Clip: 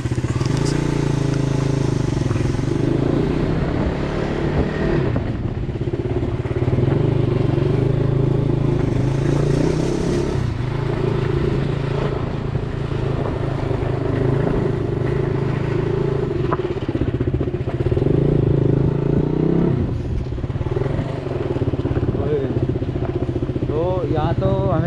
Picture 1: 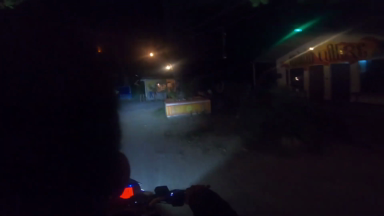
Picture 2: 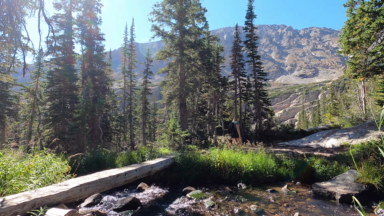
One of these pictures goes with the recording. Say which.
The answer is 1